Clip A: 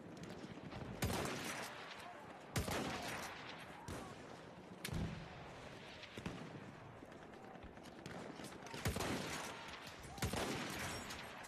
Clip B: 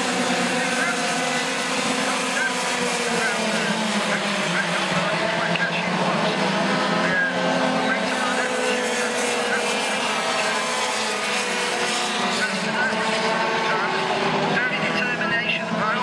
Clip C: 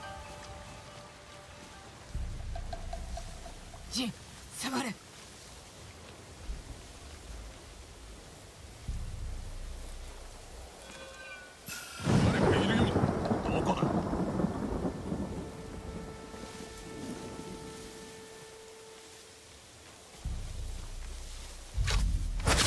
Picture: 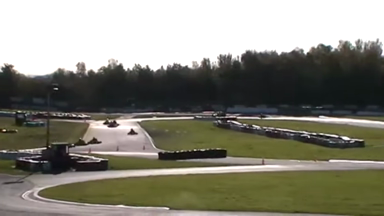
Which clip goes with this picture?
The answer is B